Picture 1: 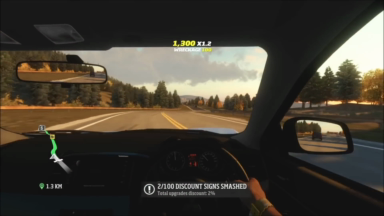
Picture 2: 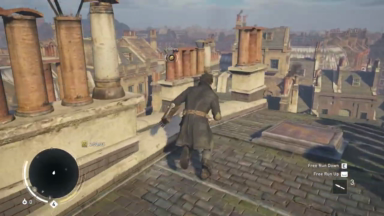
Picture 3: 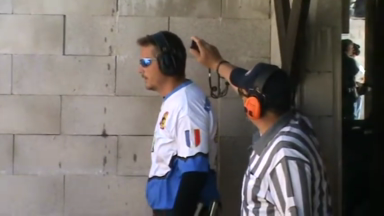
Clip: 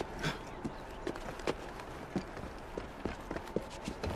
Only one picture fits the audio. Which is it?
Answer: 2